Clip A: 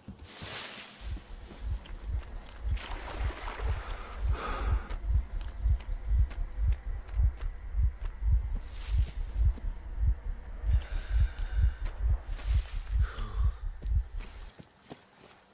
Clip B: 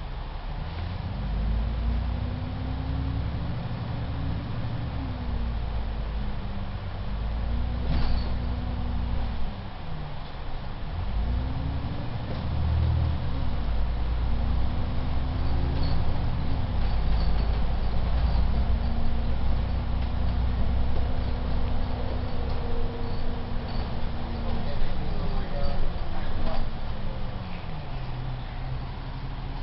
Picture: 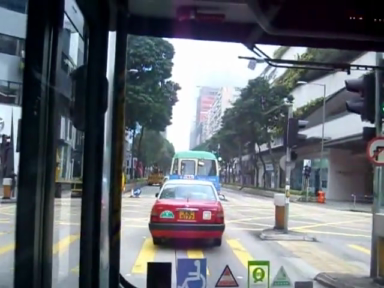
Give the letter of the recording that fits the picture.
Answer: B